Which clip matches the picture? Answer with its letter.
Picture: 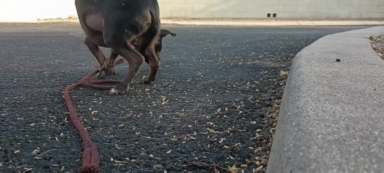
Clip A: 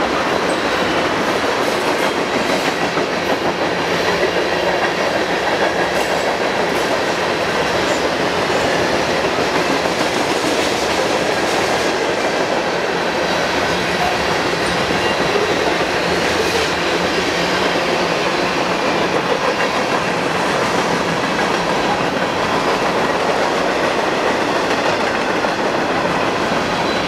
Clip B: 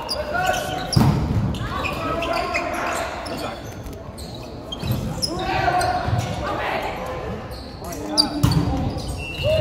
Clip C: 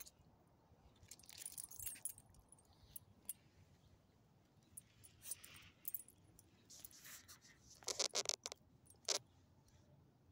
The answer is C